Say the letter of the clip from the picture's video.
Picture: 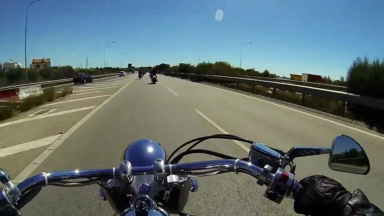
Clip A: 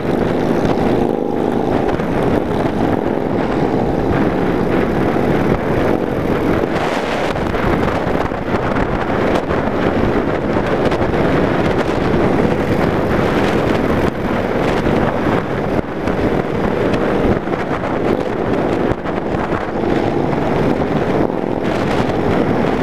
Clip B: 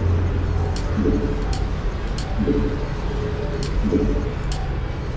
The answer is A